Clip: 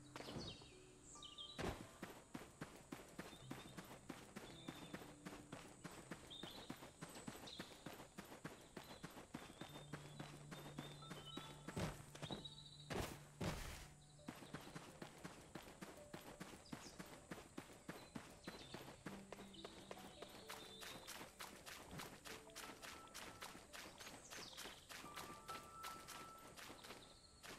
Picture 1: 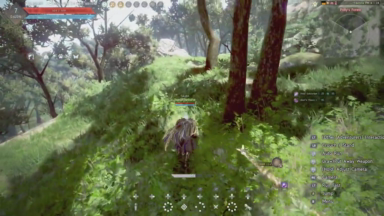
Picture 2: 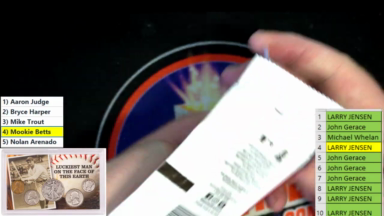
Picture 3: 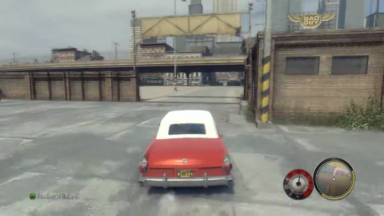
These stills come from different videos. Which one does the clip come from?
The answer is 1